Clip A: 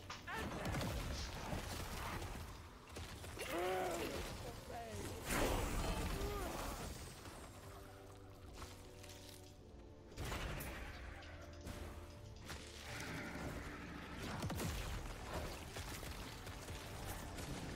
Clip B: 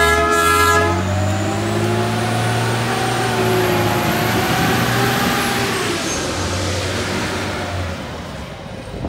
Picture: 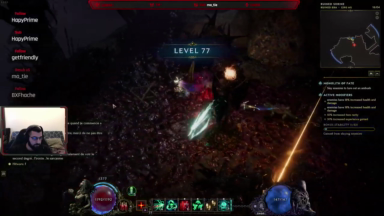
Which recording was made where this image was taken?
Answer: A